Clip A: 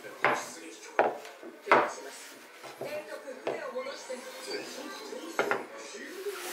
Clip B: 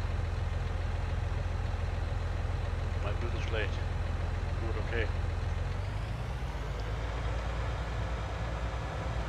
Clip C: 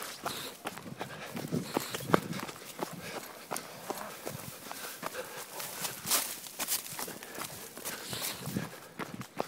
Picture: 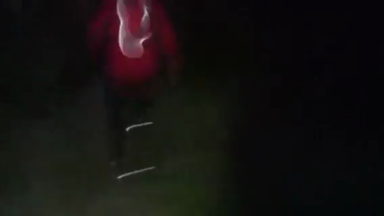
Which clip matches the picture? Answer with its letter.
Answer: C